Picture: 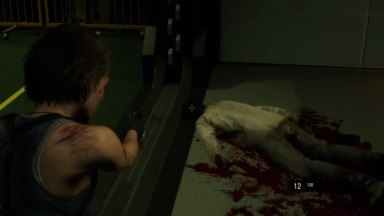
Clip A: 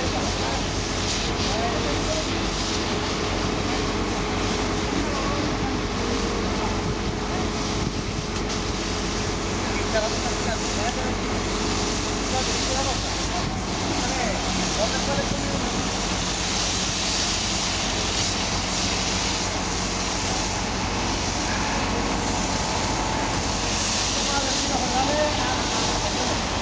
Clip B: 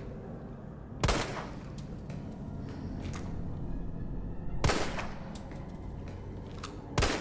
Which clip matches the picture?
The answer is B